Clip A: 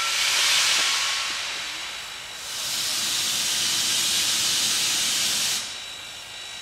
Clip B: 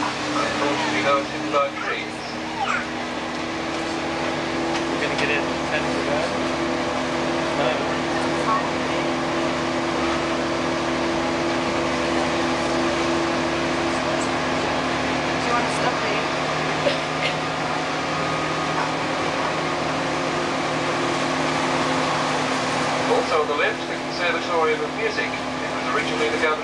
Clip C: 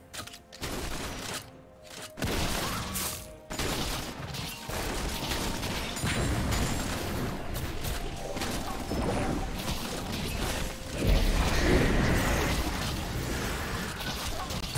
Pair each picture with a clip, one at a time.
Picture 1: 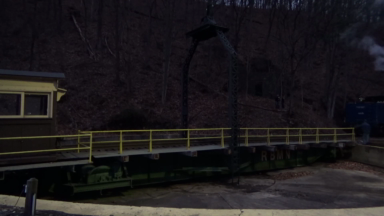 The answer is A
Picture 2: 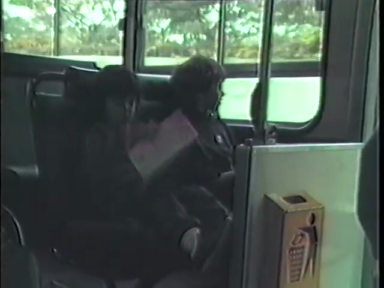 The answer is B